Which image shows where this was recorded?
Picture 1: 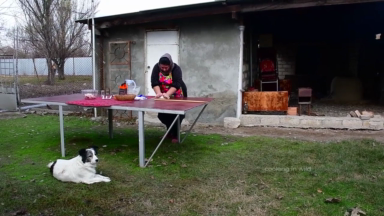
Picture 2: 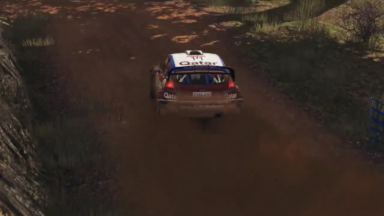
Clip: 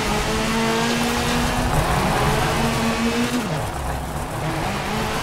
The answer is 2